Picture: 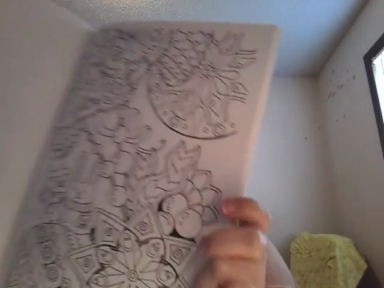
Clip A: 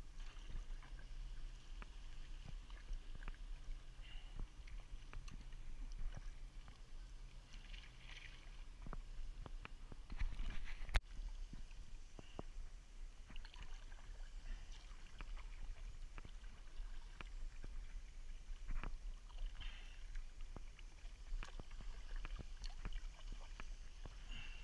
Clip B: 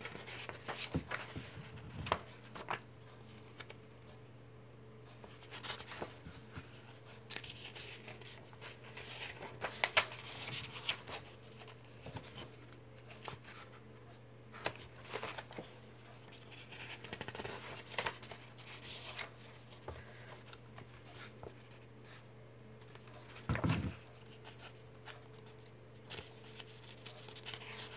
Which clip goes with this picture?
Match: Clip B